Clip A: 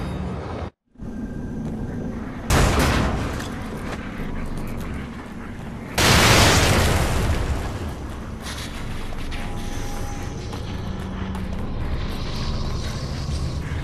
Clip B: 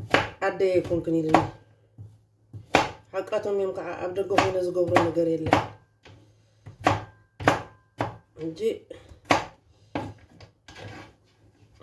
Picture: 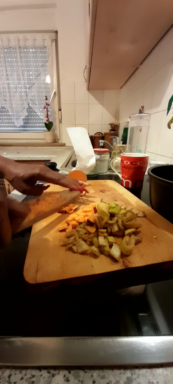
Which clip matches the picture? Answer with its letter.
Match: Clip B